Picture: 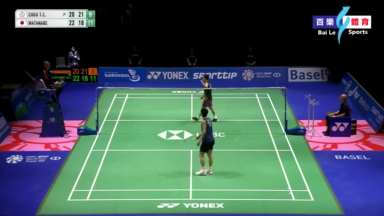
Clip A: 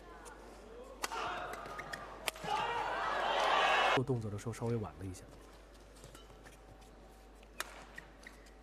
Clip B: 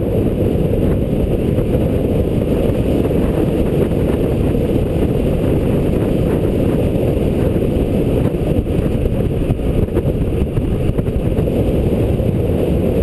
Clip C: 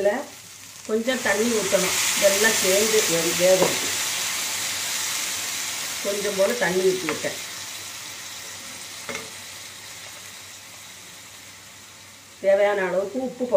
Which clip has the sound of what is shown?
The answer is A